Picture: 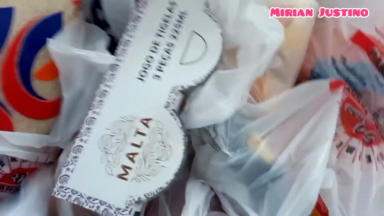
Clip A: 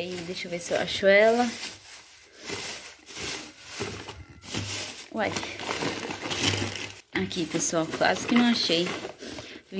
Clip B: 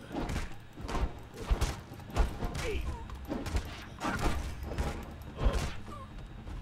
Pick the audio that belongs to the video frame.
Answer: A